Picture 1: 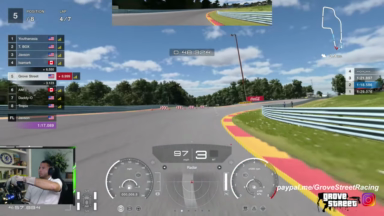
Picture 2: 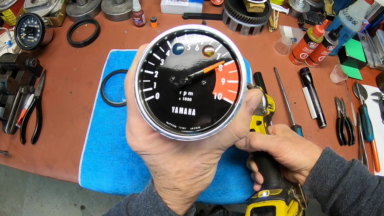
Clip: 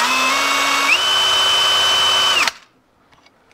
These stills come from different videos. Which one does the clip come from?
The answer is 2